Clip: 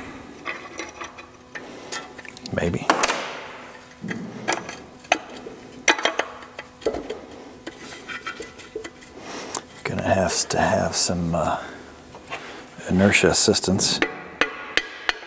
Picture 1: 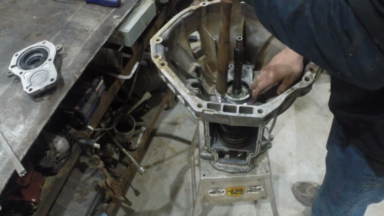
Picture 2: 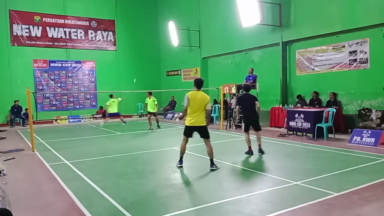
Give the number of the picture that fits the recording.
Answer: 1